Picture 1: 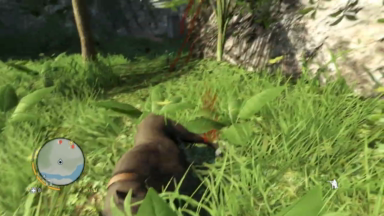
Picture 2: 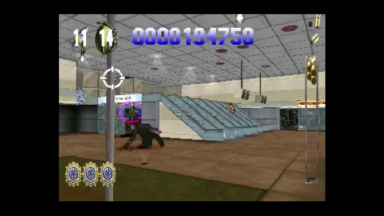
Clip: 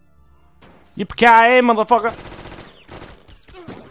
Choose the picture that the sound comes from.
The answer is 2